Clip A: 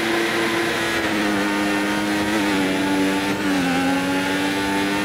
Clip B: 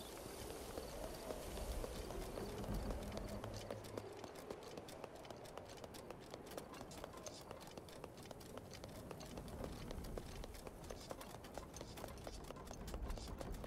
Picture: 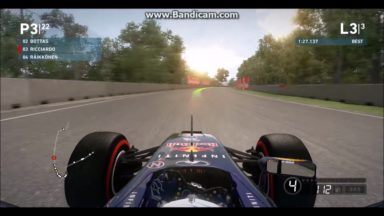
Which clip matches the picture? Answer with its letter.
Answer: A